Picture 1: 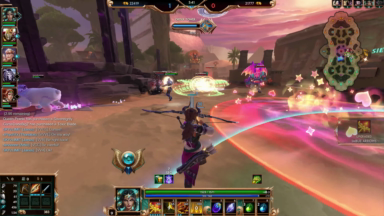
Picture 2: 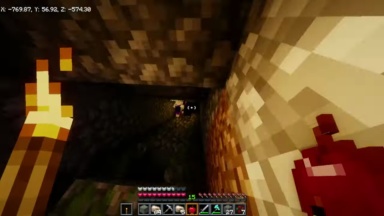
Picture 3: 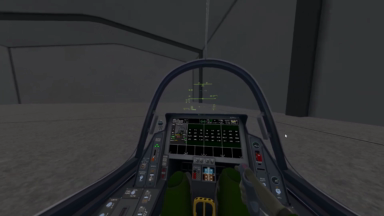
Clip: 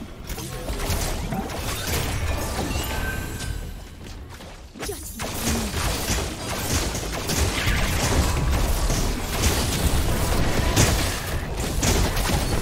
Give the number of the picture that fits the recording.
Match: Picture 1